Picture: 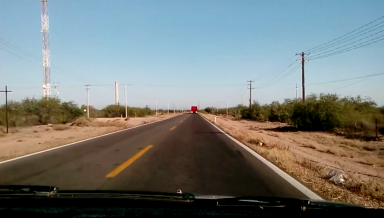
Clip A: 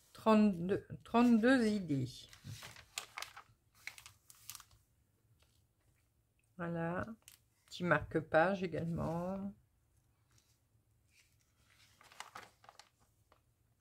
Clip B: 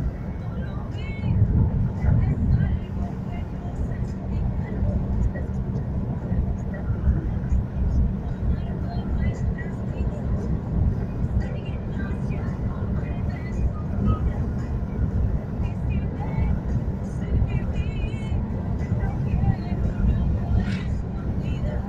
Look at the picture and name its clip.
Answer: B